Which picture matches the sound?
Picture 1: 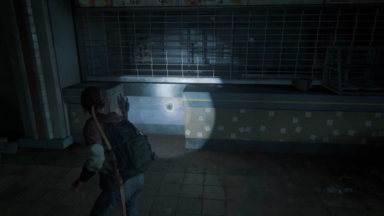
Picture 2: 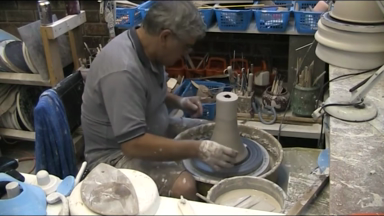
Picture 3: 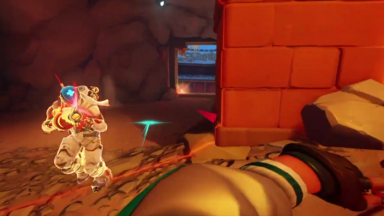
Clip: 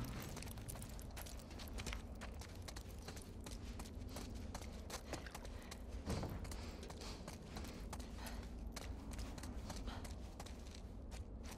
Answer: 1